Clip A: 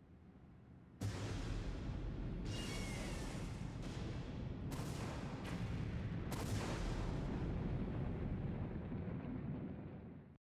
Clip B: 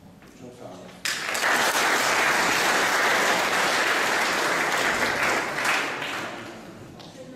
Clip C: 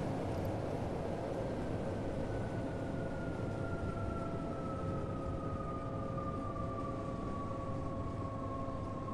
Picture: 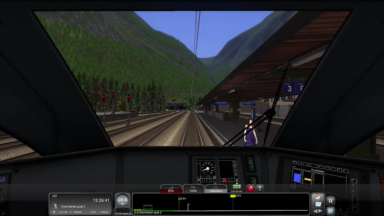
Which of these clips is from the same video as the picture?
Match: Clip C